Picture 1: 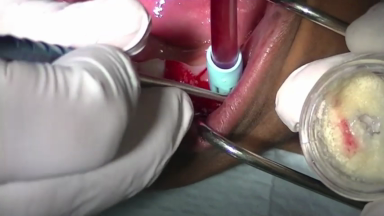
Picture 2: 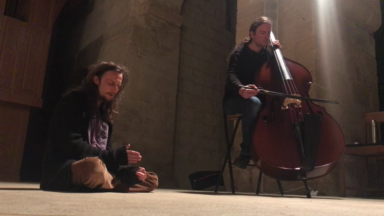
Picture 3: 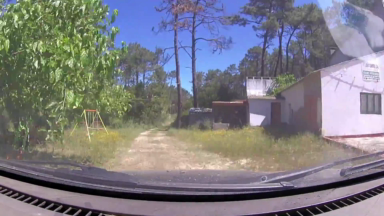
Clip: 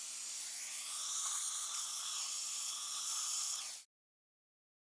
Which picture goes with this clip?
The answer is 1